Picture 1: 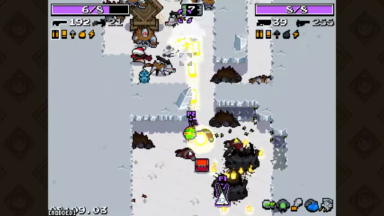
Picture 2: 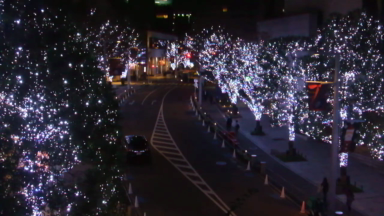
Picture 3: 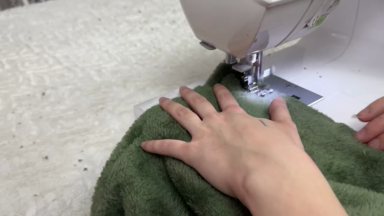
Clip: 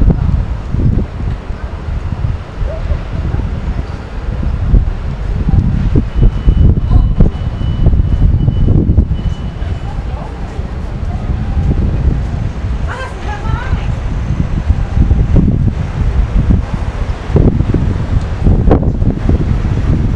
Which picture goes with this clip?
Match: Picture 2